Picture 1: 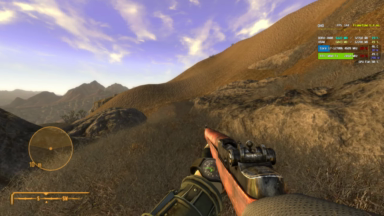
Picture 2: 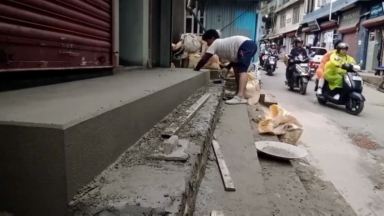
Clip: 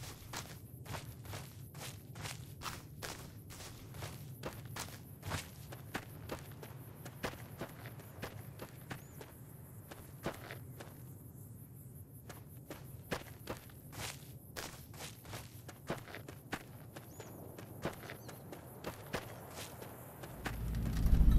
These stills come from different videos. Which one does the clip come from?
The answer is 1